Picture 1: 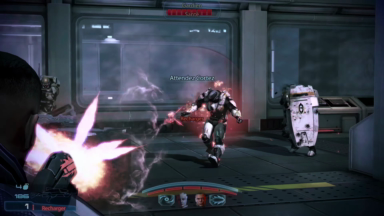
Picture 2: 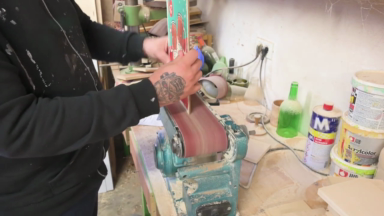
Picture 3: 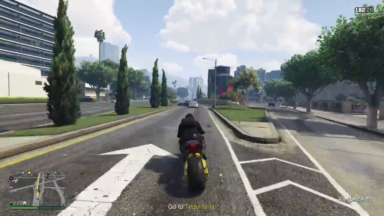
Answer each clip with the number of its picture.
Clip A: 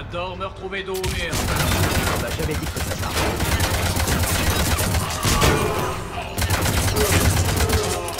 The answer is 1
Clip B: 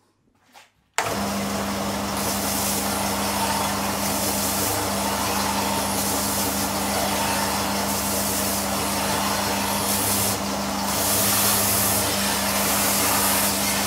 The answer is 2